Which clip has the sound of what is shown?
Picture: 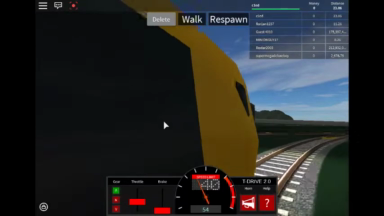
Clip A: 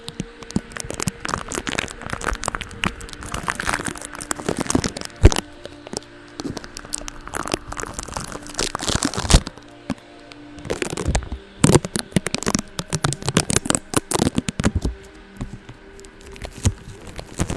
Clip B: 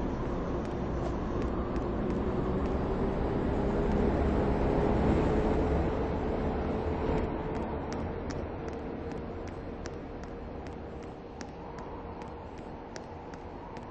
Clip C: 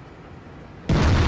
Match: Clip B